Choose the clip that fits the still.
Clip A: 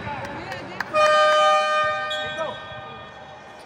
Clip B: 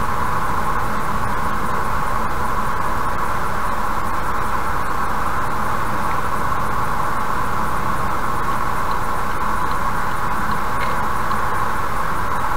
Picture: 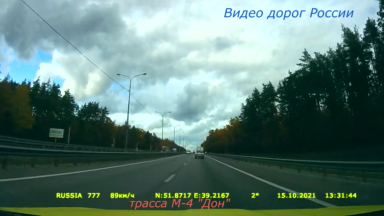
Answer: B